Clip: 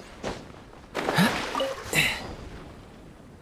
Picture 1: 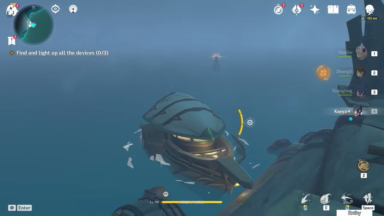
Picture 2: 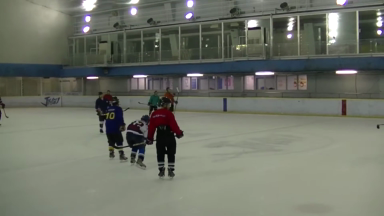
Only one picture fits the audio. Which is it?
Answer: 1